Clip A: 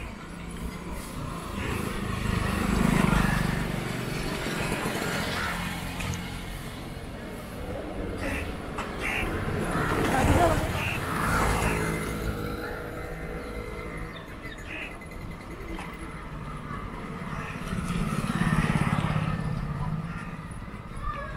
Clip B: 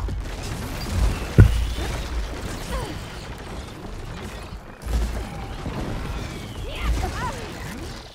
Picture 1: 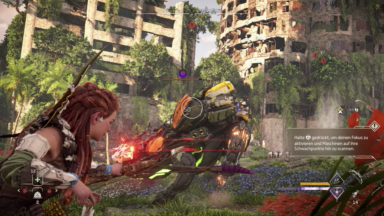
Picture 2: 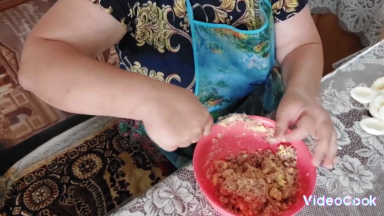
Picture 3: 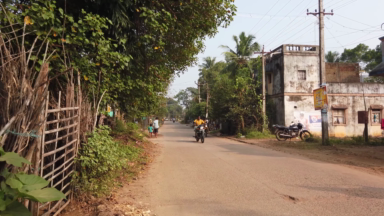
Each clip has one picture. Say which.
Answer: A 3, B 1